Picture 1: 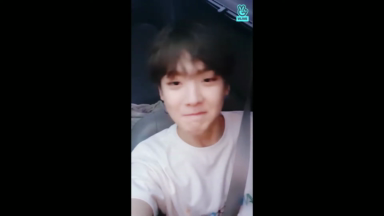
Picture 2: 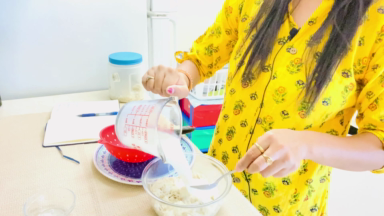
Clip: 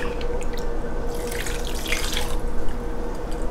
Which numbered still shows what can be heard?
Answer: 2